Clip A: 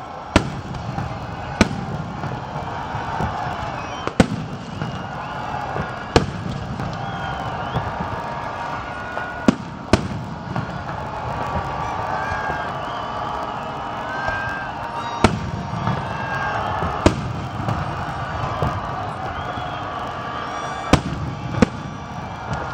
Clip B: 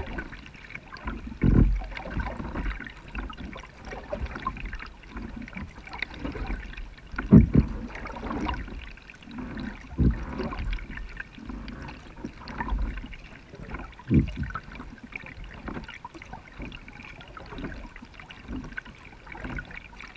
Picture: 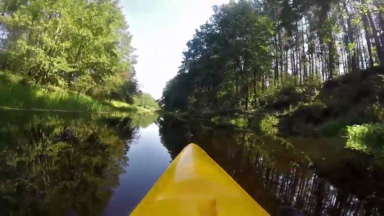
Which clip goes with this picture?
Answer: B